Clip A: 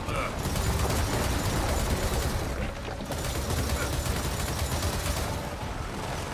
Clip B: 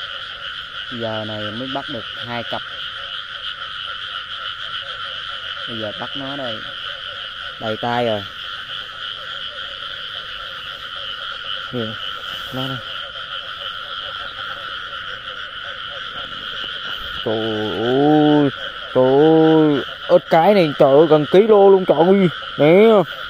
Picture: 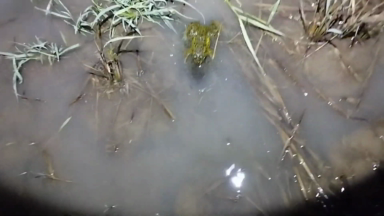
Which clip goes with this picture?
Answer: B